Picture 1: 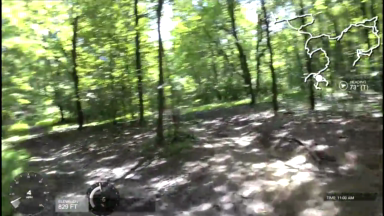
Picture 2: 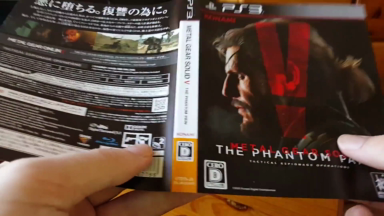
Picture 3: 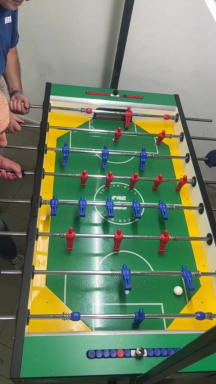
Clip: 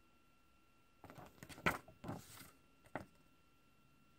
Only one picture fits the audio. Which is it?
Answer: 2